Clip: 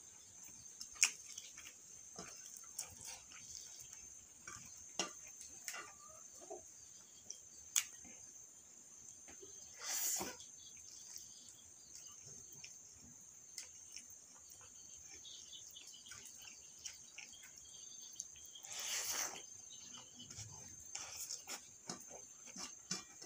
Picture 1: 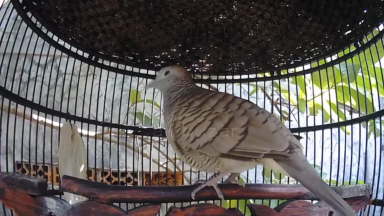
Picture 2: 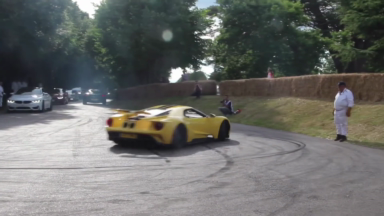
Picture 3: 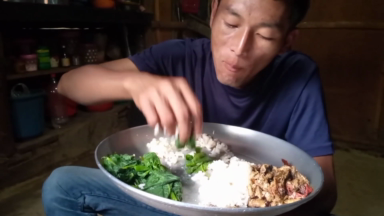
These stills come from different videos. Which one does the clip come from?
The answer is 3